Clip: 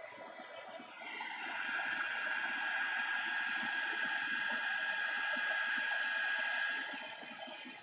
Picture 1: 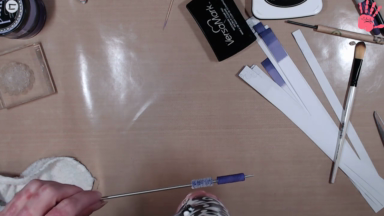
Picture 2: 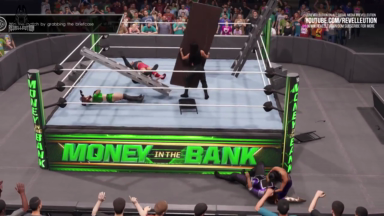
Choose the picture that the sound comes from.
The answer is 1